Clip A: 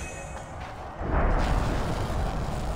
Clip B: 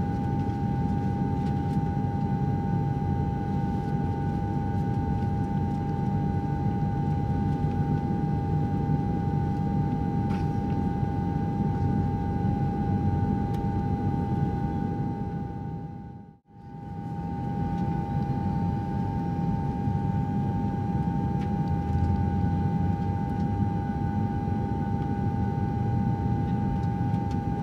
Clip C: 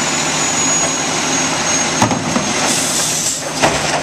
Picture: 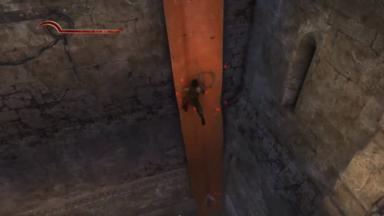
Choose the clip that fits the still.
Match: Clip A